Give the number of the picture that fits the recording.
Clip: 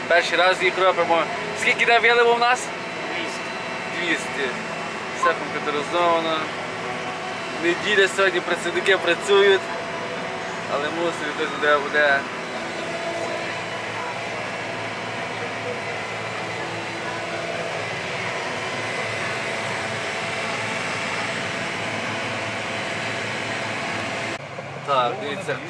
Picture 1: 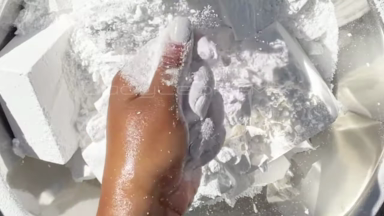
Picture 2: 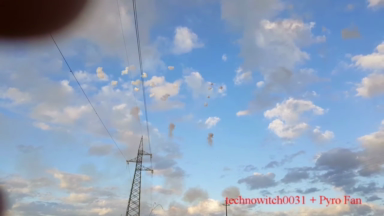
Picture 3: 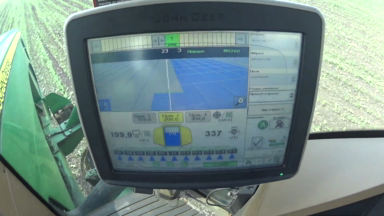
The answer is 3